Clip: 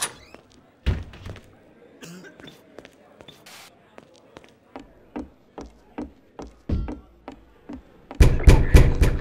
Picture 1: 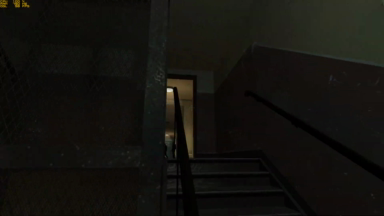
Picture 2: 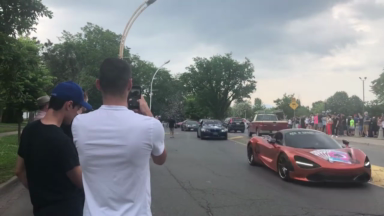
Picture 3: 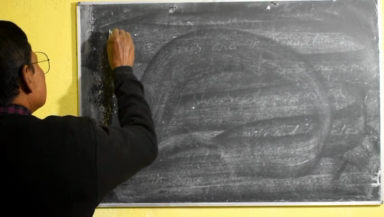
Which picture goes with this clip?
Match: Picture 1